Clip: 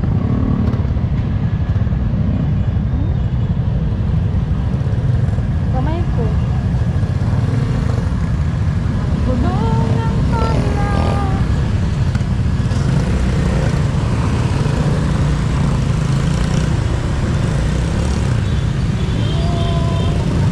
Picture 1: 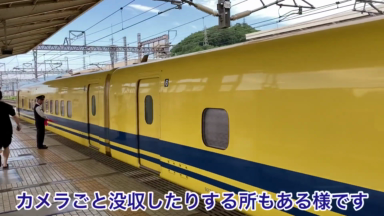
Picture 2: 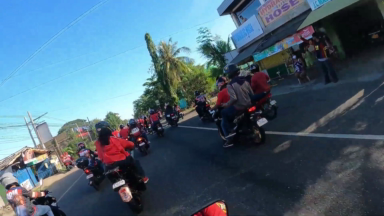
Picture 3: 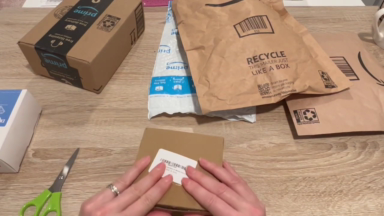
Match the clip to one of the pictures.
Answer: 2